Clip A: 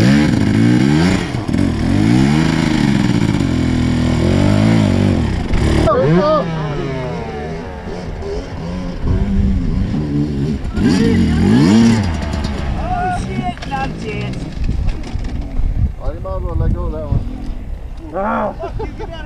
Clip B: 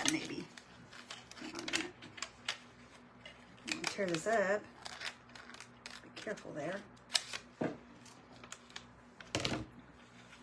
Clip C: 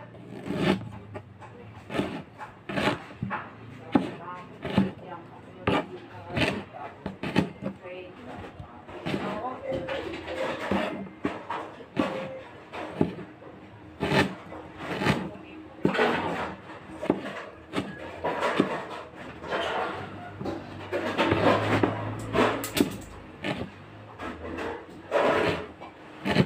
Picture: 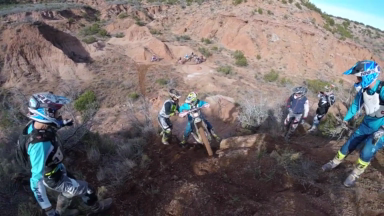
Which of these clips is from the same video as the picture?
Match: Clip A